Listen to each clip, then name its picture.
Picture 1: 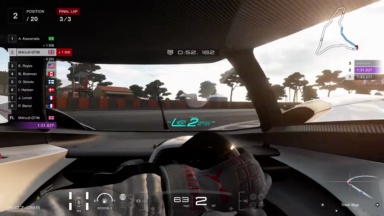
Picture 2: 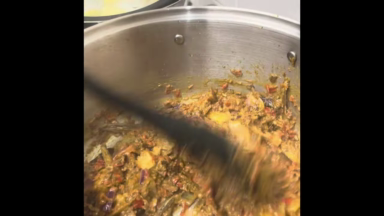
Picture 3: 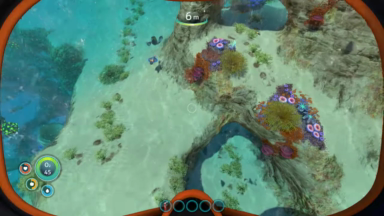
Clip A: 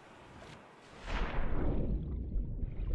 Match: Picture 3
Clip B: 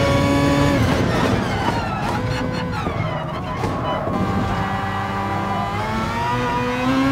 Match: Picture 1